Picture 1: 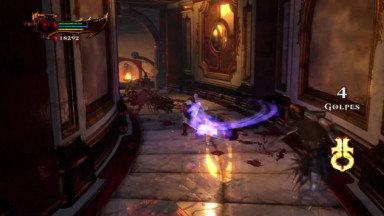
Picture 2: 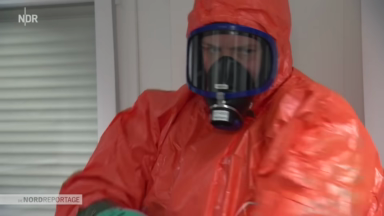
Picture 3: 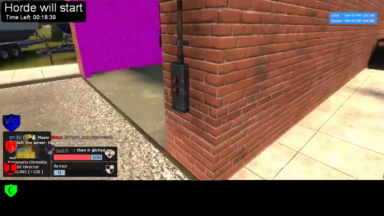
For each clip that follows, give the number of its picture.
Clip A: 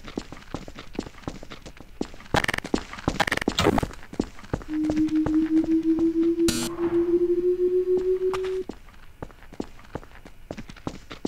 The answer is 3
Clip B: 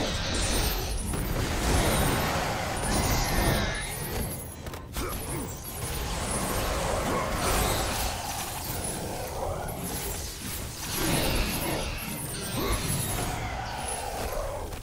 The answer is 1